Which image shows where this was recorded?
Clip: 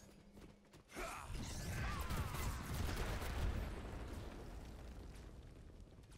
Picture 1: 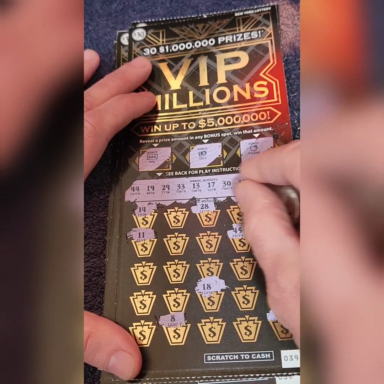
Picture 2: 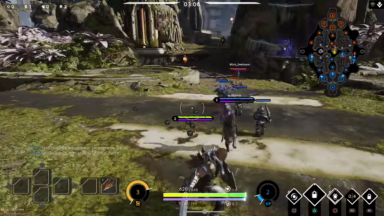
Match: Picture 2